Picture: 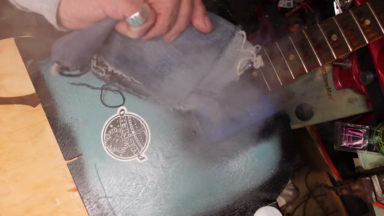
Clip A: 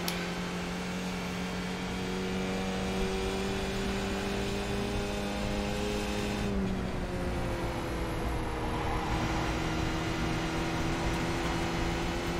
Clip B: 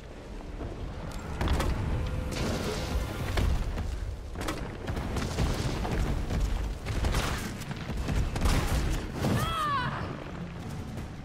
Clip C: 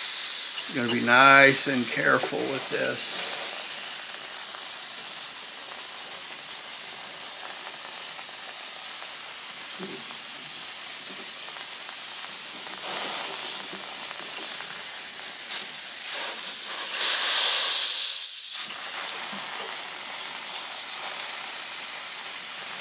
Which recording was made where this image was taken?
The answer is C